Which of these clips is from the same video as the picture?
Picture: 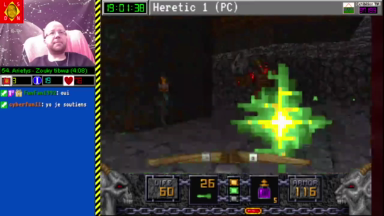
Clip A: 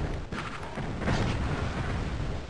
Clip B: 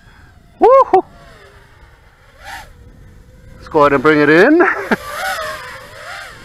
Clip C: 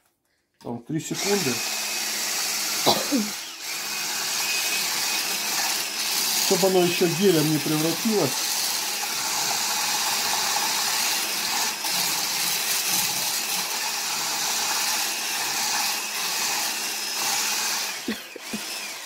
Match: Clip A